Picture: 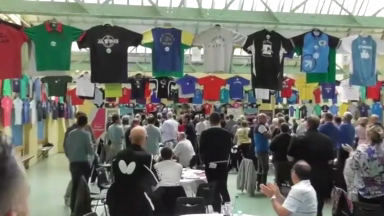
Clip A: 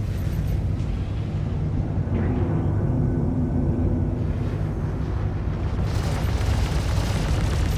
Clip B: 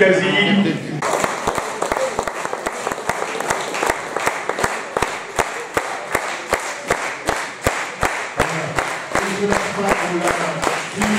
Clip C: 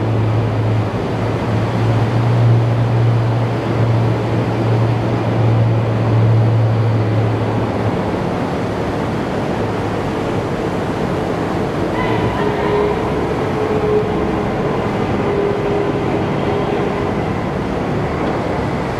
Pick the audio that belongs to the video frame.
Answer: B